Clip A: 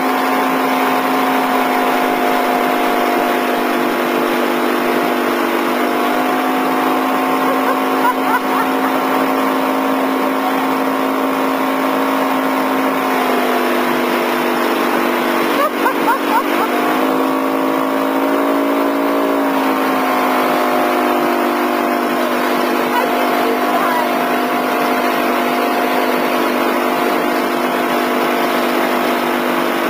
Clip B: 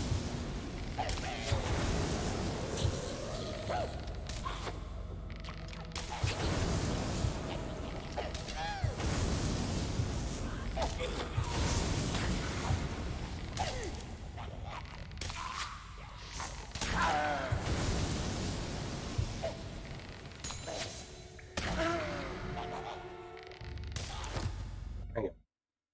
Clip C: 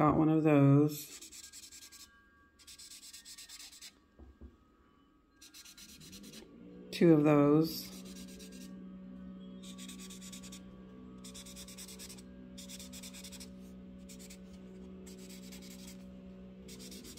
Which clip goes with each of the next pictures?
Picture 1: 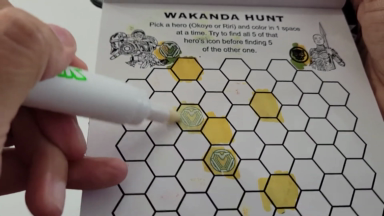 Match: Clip C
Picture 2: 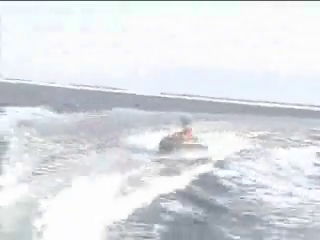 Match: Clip A